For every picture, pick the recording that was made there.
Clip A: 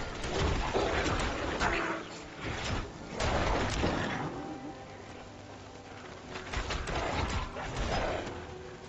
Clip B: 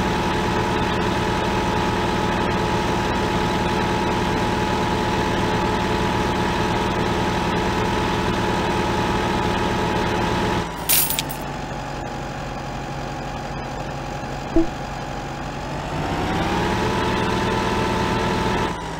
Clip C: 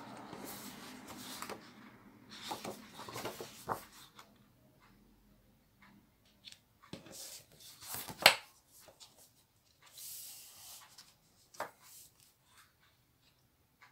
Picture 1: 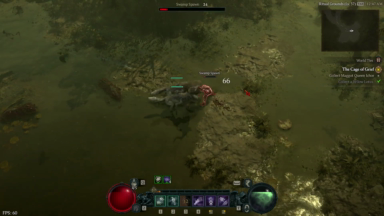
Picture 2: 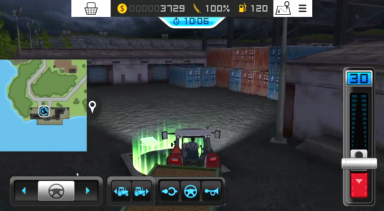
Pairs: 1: A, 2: B